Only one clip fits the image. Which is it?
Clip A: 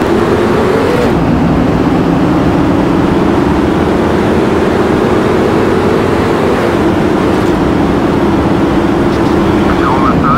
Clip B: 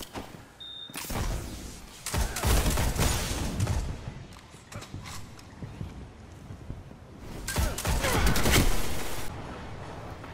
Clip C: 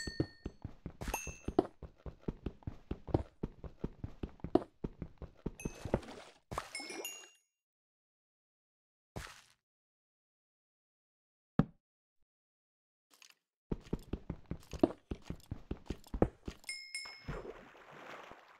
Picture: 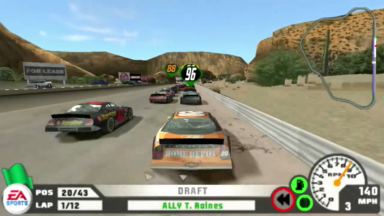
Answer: A